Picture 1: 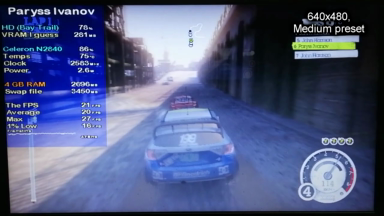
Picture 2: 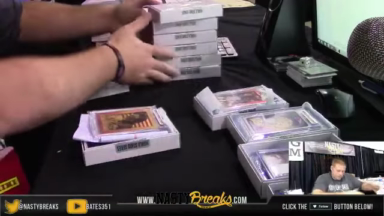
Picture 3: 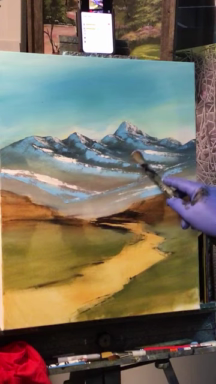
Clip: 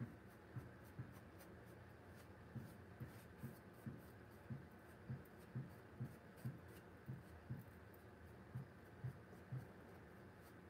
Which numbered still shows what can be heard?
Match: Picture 3